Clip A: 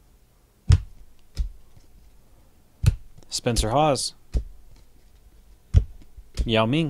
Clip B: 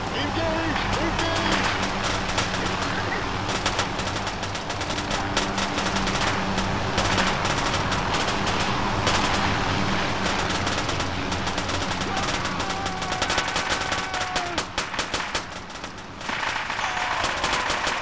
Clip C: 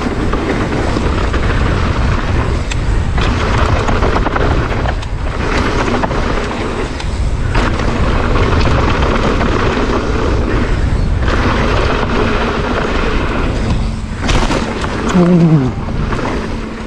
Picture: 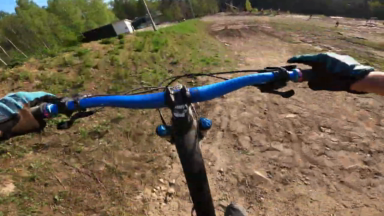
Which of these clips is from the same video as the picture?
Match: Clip C